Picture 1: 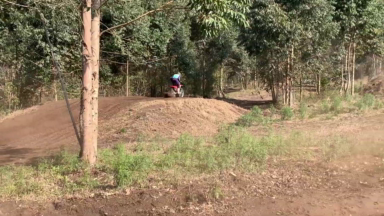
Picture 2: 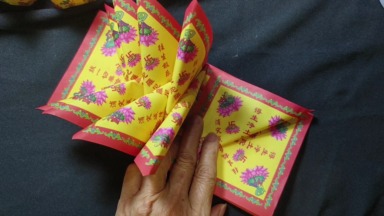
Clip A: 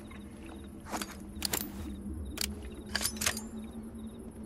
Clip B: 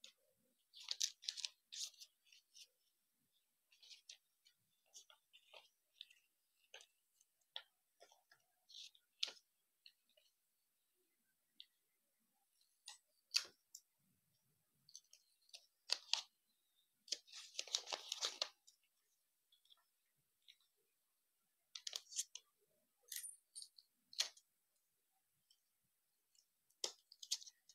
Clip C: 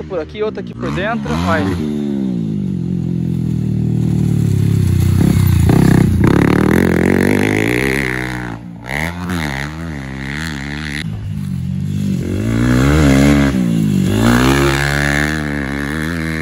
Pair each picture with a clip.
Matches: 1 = C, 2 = B